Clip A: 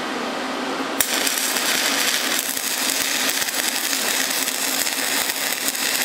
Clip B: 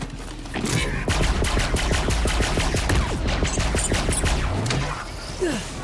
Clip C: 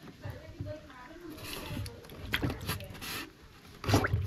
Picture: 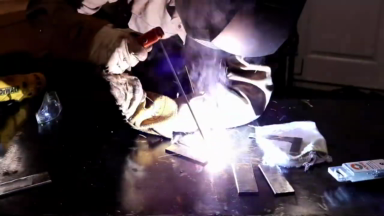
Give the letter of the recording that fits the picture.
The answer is A